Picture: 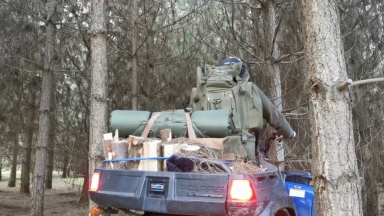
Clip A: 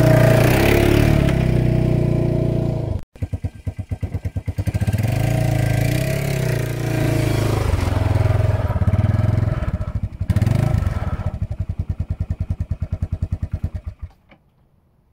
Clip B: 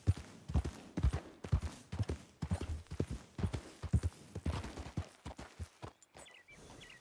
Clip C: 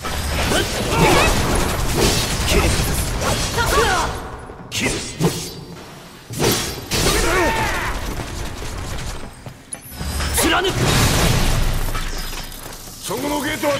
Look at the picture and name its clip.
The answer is A